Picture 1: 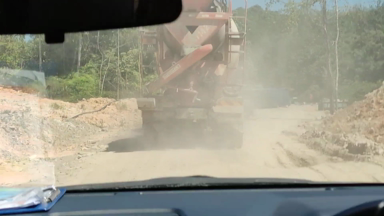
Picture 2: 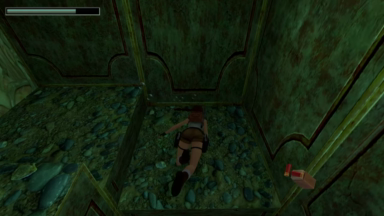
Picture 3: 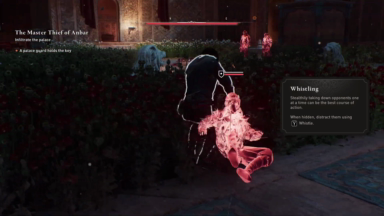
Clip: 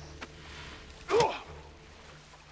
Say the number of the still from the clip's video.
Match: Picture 3